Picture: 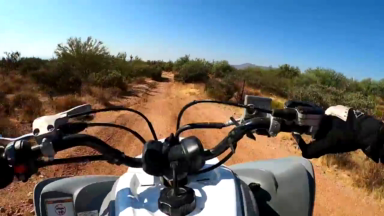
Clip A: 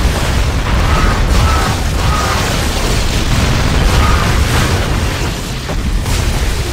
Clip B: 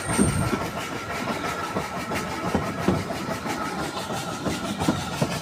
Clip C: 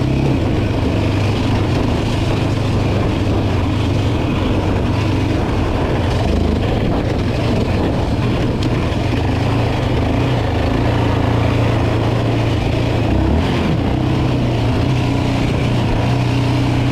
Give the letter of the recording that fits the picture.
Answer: C